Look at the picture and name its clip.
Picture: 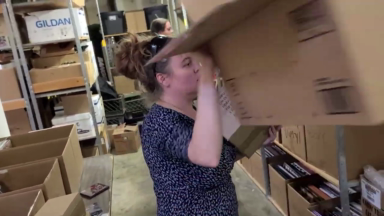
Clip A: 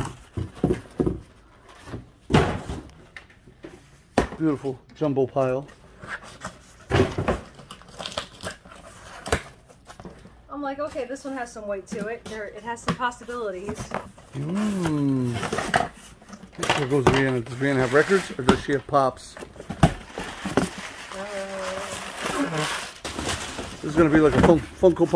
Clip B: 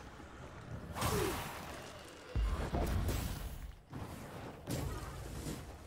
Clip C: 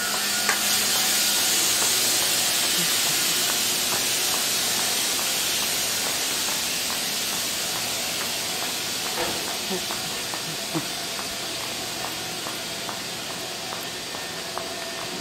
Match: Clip A